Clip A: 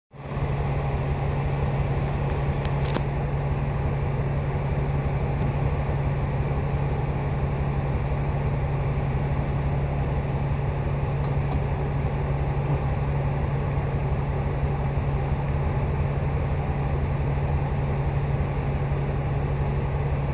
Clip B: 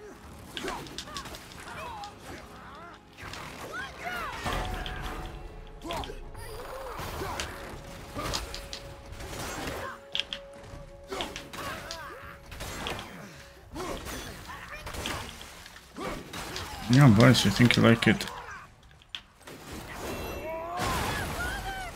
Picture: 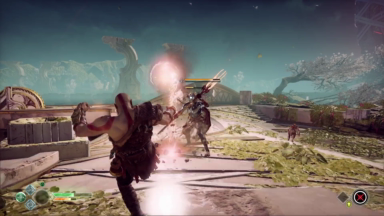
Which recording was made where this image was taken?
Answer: B